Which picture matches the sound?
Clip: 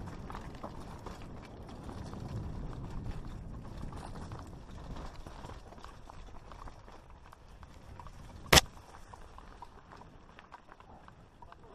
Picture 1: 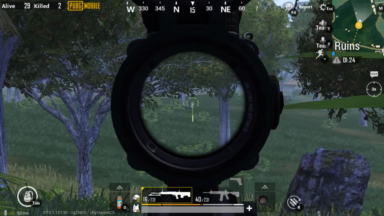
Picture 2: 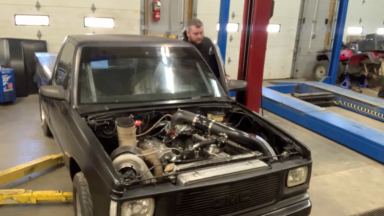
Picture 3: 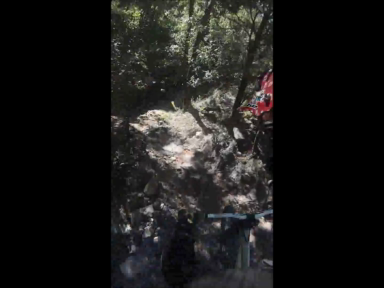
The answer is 3